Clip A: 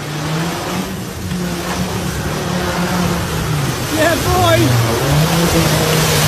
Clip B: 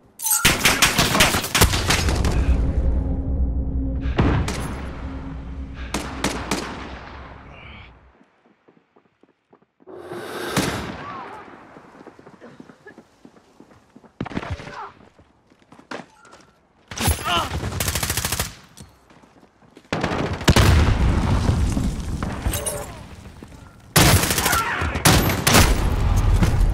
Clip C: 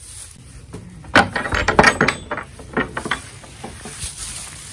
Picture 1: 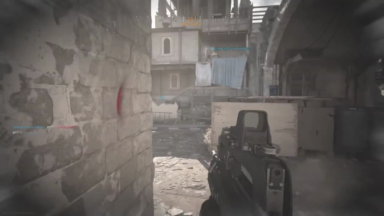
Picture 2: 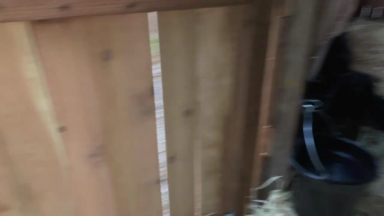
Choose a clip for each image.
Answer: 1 B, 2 C